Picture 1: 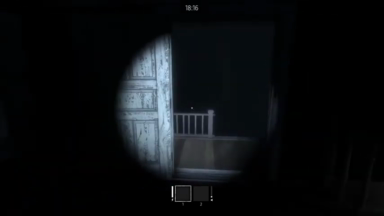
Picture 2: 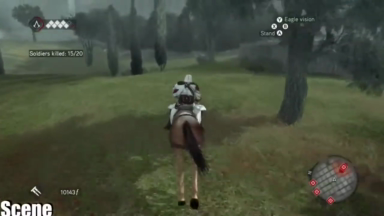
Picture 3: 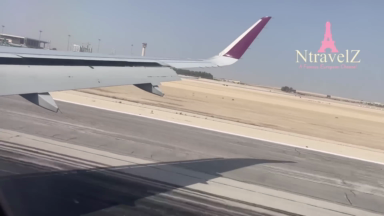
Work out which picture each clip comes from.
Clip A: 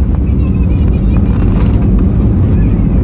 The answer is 3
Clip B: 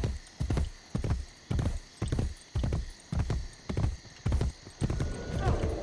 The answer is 2